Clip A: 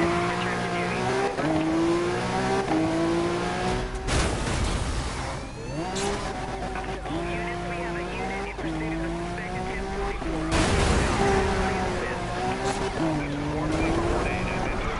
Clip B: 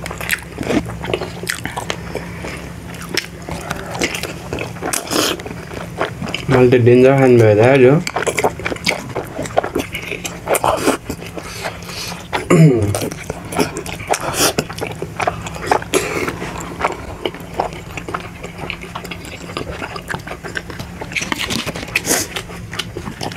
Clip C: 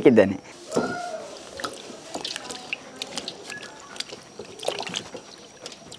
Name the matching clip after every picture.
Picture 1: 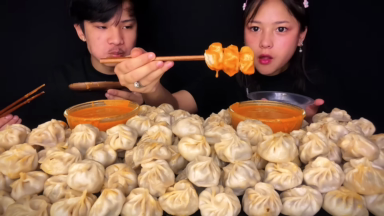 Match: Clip B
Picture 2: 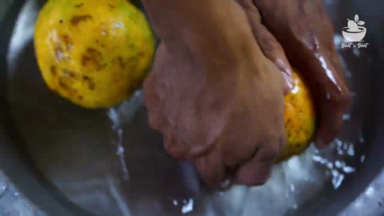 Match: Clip C